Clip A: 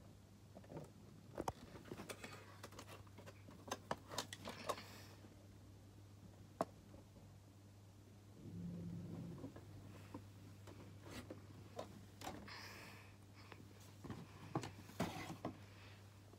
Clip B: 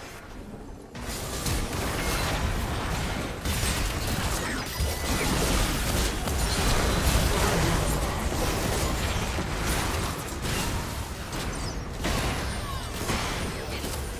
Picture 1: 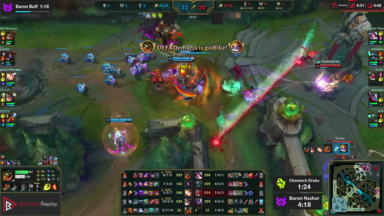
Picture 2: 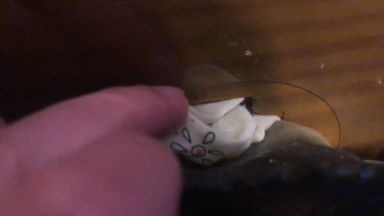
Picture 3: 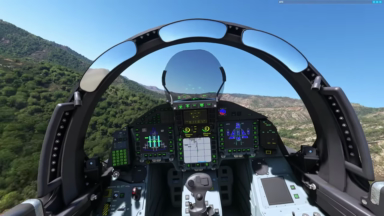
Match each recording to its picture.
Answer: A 2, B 1